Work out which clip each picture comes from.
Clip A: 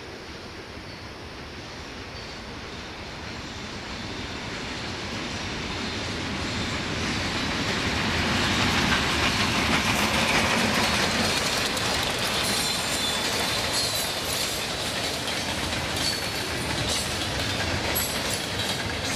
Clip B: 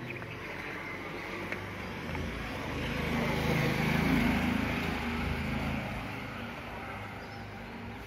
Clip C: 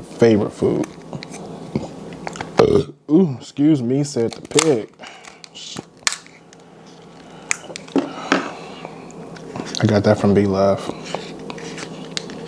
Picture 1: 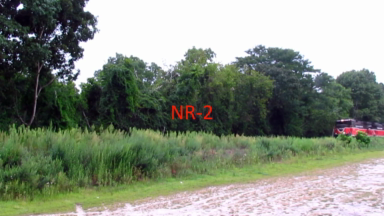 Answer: A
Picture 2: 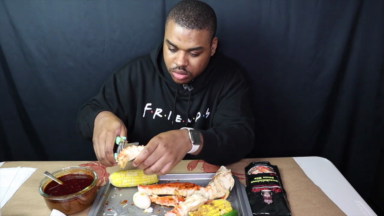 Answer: C